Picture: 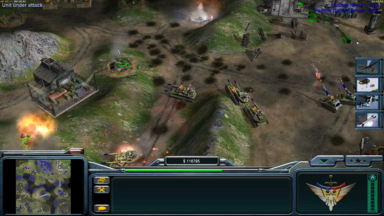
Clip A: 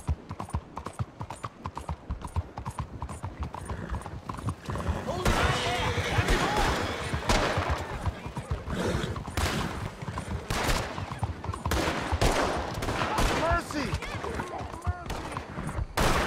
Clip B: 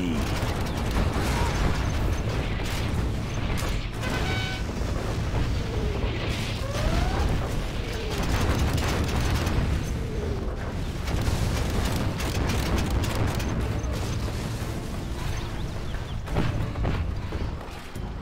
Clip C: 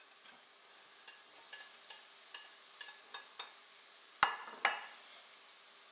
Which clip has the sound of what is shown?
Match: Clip B